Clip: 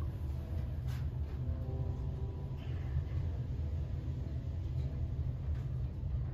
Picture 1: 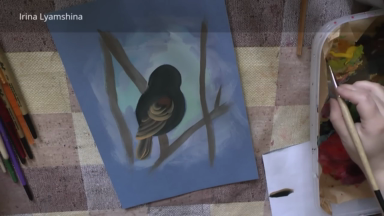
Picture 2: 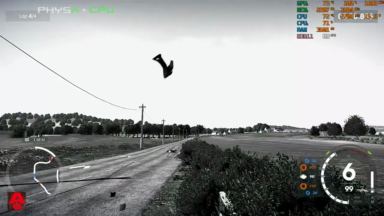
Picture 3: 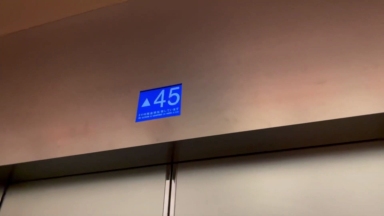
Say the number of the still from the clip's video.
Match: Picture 3